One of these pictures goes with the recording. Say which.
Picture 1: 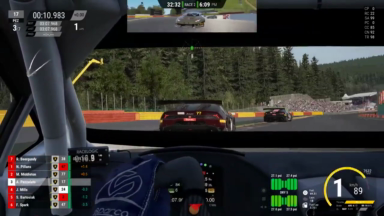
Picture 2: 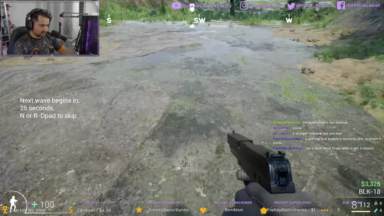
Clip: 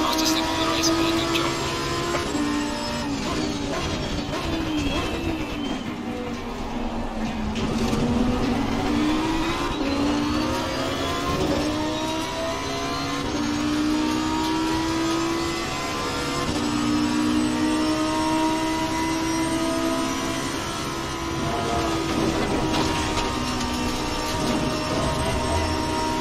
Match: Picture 1